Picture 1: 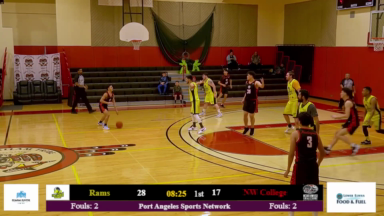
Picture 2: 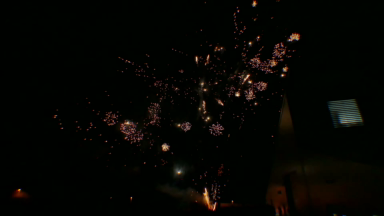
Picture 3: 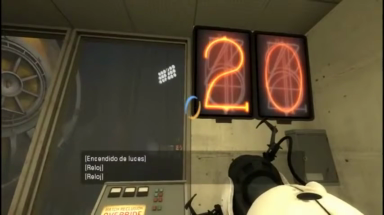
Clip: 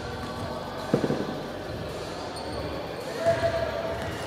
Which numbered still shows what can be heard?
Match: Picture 1